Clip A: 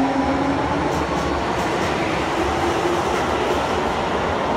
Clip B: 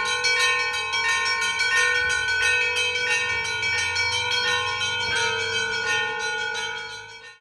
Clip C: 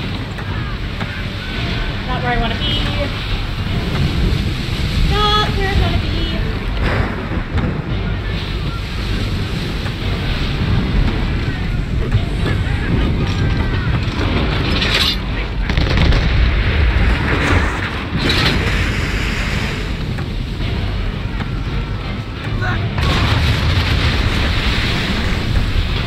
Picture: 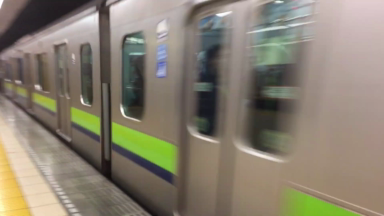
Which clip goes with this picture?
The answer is A